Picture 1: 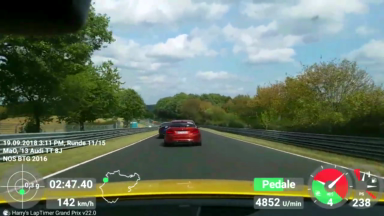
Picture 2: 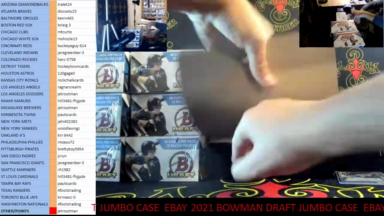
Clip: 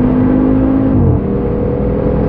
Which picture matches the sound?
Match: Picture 1